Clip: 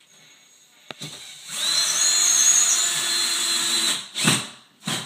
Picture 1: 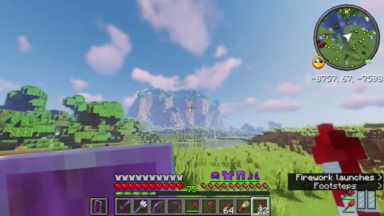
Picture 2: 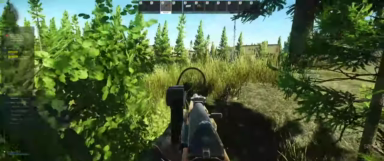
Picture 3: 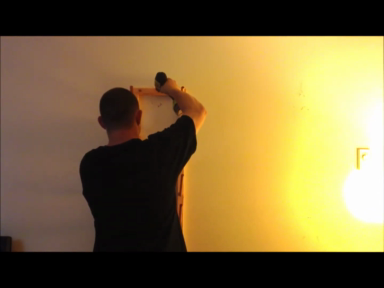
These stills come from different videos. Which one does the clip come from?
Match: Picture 3